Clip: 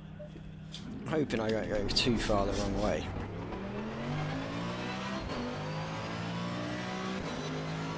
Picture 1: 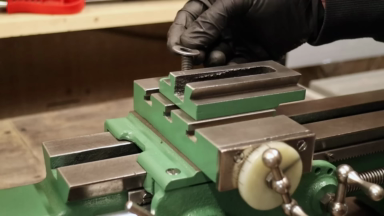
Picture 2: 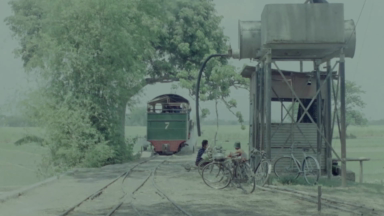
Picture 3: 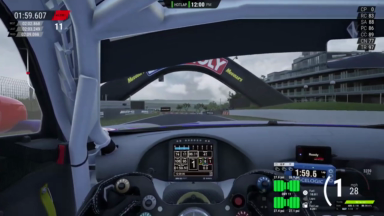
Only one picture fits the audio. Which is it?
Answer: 3